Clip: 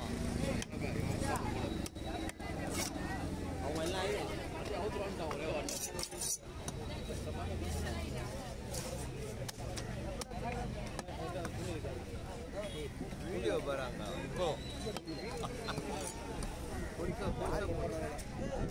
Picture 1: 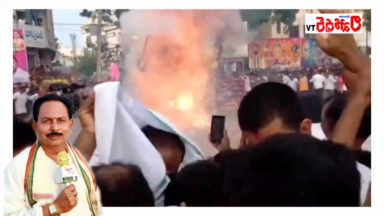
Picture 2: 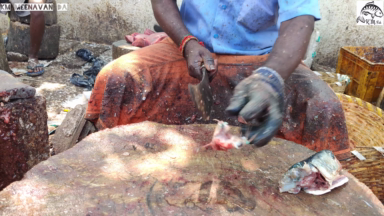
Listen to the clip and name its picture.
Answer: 2